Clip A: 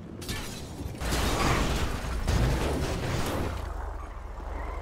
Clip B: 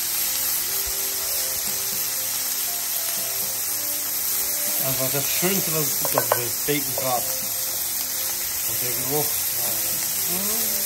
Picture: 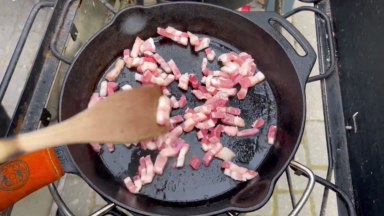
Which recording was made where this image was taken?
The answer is B